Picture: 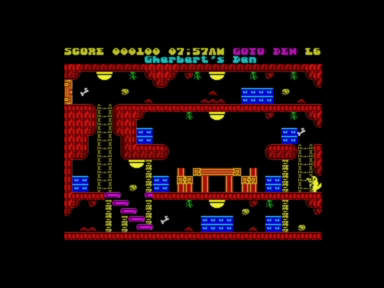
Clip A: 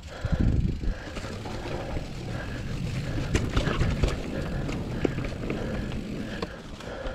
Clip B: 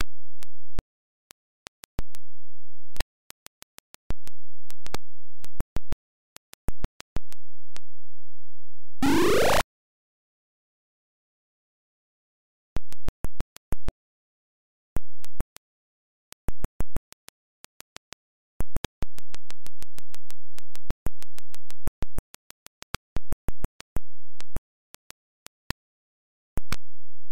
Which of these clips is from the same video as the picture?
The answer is B